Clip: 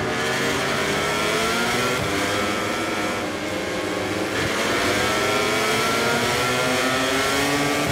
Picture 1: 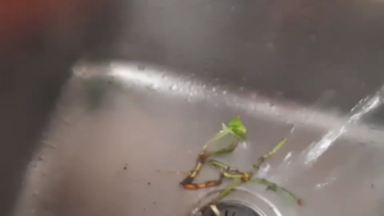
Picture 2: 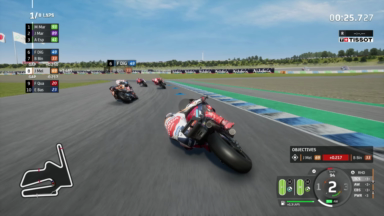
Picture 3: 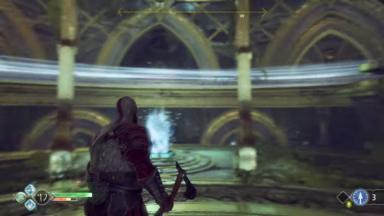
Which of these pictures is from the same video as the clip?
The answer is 2